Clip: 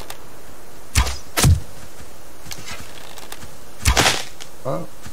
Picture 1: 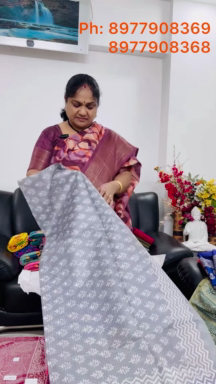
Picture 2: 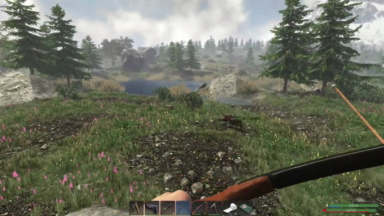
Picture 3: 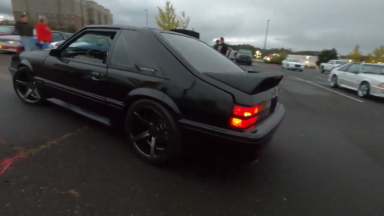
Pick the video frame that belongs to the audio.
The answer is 2